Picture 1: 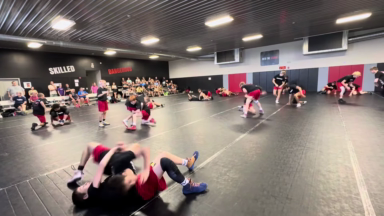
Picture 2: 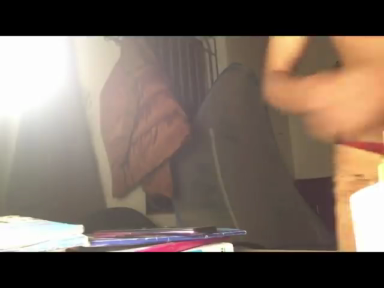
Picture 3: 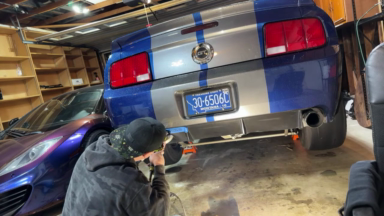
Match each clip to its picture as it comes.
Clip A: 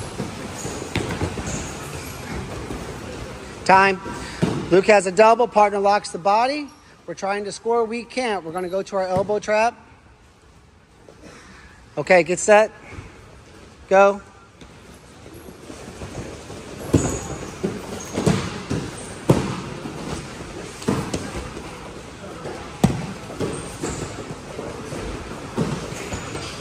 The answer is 1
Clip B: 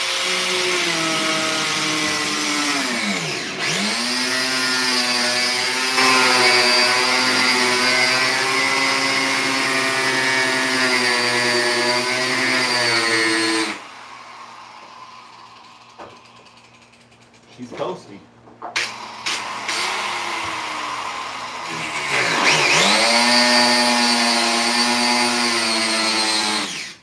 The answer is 3